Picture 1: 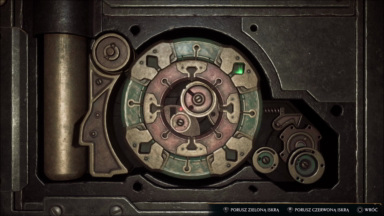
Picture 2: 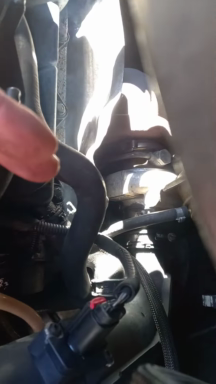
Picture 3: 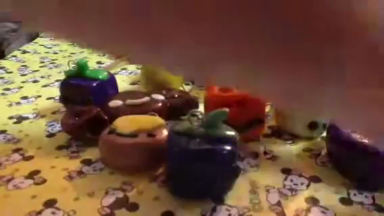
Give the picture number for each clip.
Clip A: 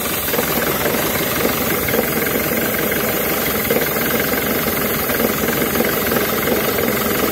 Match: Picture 2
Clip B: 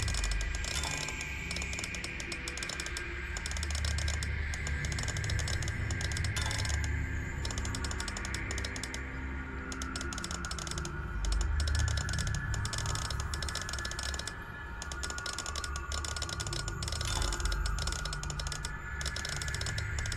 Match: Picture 1